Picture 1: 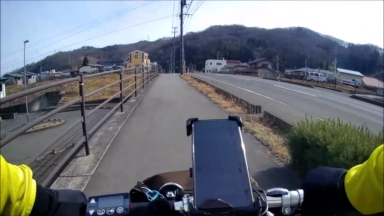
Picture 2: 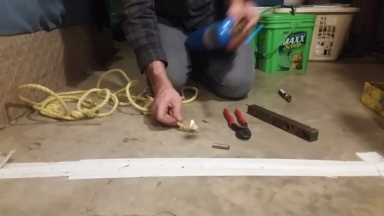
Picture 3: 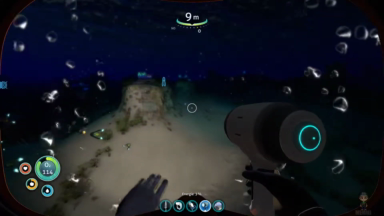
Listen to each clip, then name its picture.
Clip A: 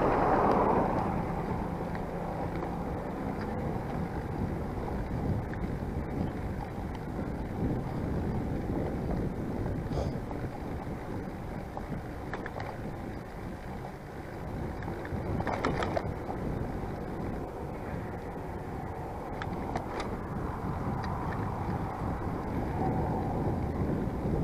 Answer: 1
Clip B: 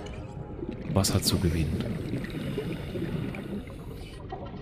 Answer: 3